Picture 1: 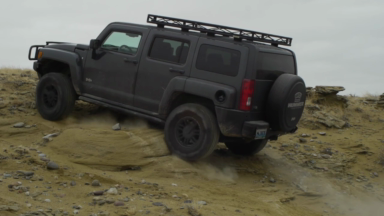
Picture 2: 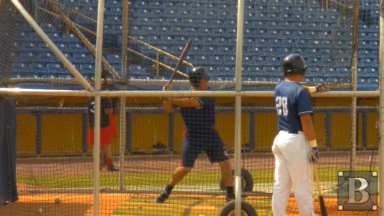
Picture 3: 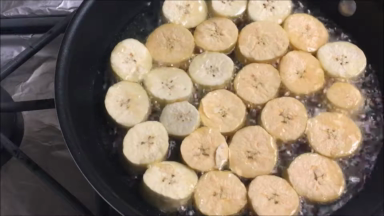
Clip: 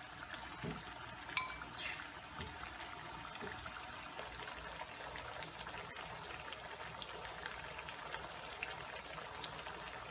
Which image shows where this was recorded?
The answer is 3